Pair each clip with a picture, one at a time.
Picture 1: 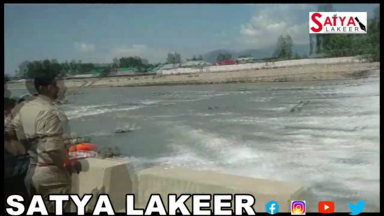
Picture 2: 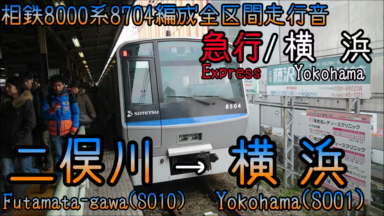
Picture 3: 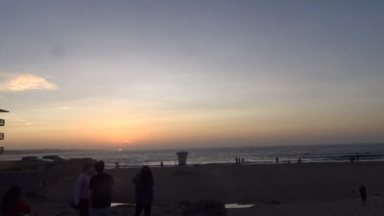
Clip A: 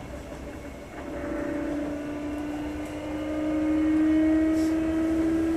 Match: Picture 2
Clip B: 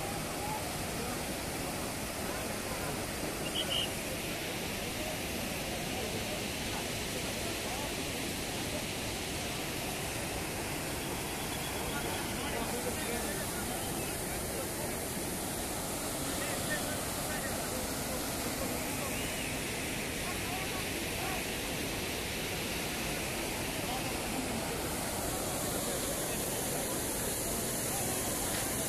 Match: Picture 1